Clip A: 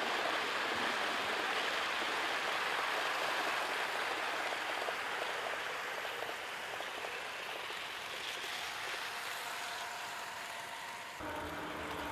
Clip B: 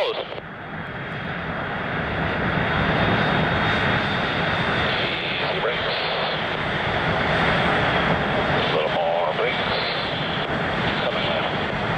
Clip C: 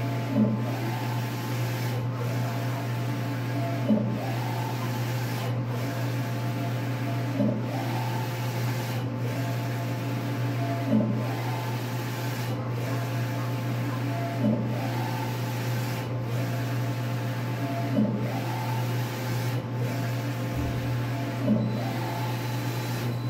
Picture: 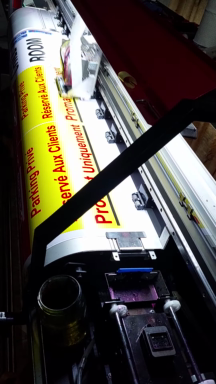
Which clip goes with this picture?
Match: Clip C